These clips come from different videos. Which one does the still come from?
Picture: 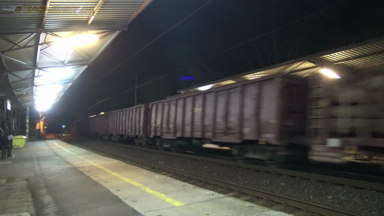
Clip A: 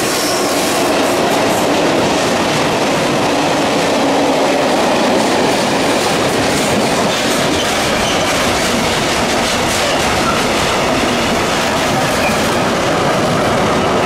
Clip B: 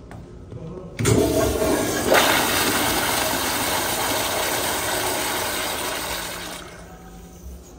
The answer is A